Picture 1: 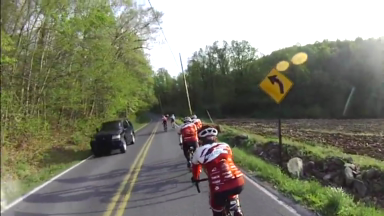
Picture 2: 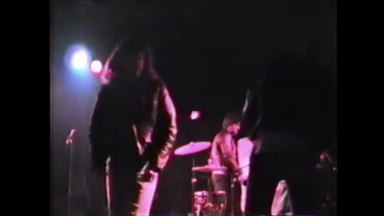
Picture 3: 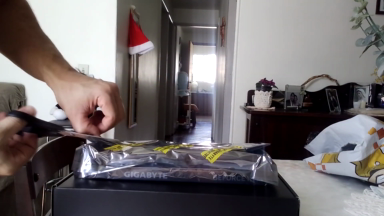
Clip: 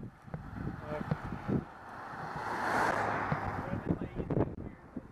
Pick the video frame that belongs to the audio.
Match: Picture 1